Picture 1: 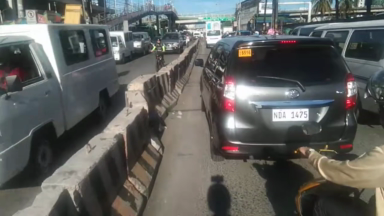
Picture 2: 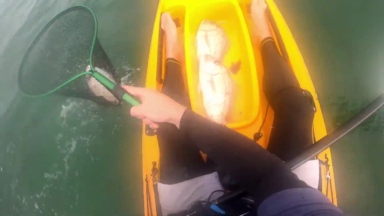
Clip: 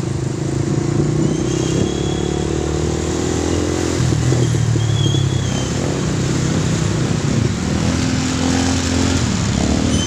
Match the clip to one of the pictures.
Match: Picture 1